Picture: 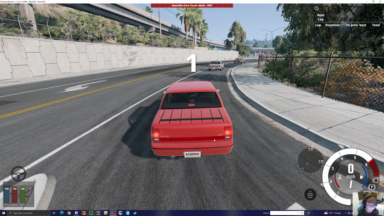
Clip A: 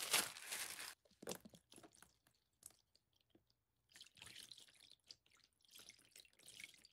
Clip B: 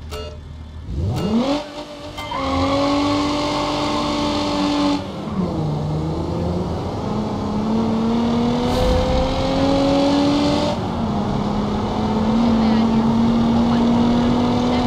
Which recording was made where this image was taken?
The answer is B